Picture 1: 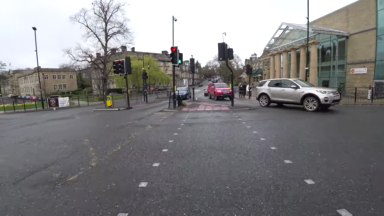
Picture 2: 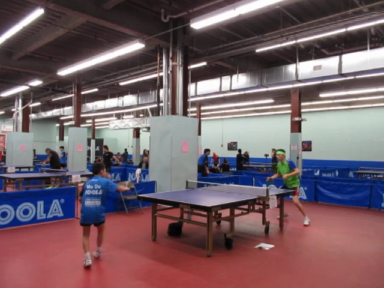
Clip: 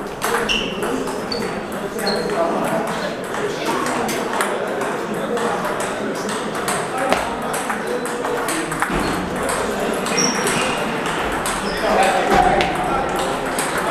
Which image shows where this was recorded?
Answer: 2